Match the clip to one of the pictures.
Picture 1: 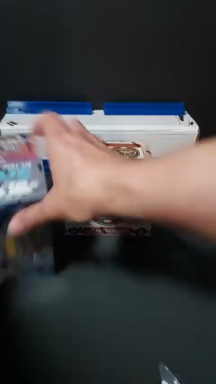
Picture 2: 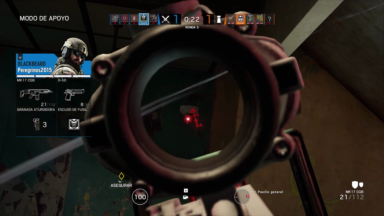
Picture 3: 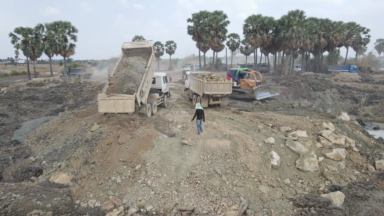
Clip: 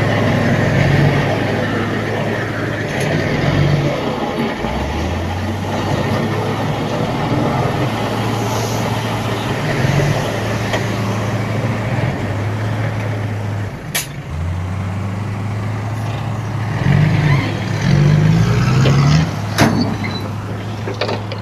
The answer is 3